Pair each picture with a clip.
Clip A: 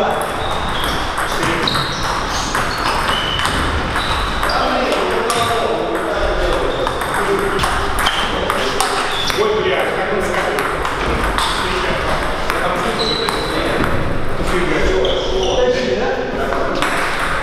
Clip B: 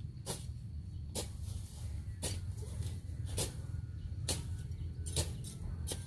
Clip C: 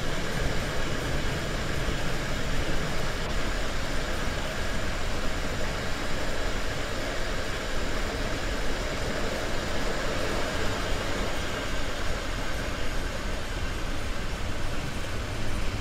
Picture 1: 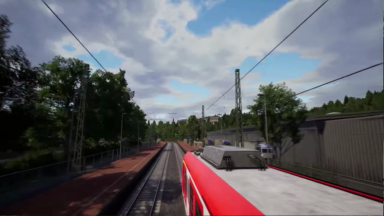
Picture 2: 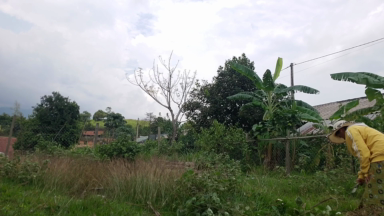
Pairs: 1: C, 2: B